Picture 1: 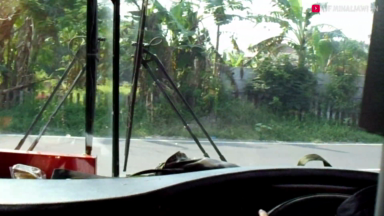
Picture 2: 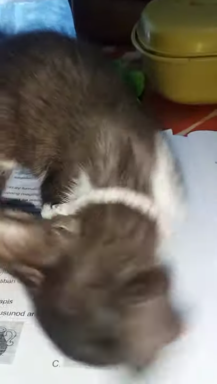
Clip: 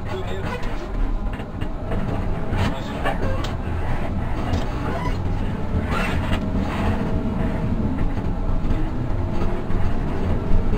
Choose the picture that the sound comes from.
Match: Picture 1